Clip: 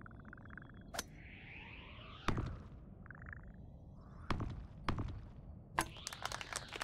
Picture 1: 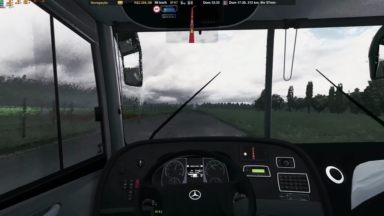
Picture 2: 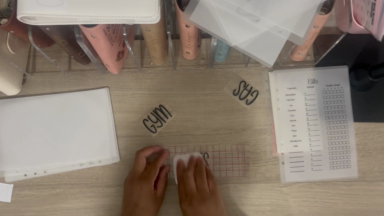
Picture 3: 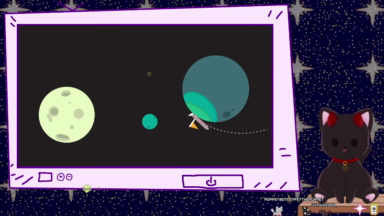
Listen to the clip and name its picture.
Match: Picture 3